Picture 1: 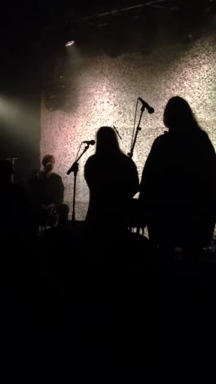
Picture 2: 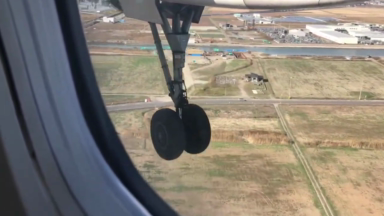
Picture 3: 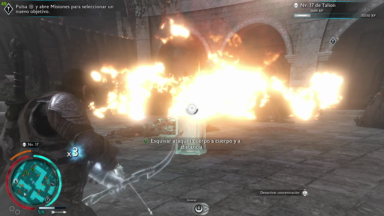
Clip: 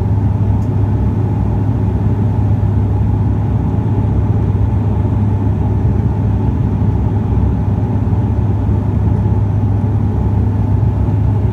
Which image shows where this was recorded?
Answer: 2